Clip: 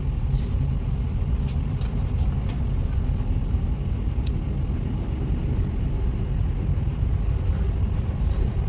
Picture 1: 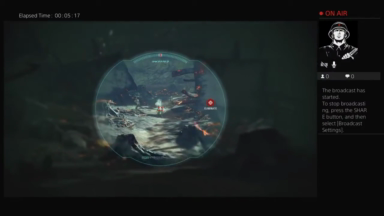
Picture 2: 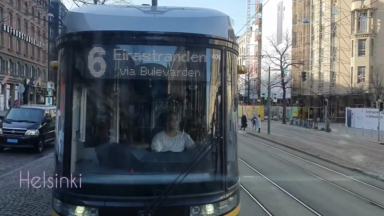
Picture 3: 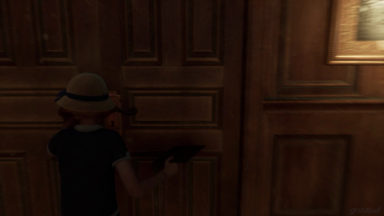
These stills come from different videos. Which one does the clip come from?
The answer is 2